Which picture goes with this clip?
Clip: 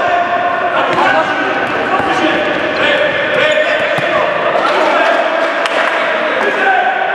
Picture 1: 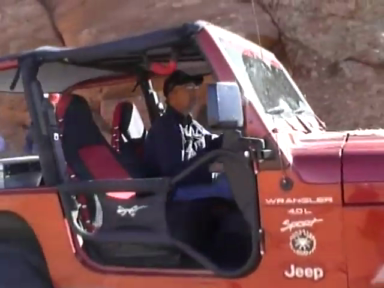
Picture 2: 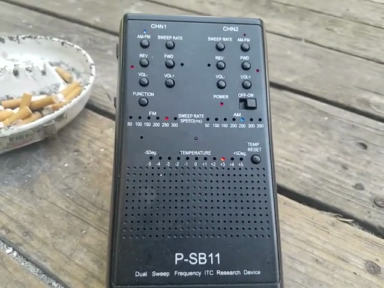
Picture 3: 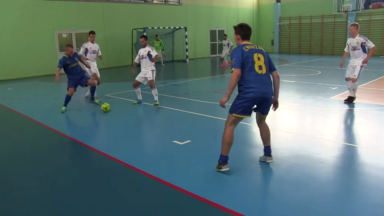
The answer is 3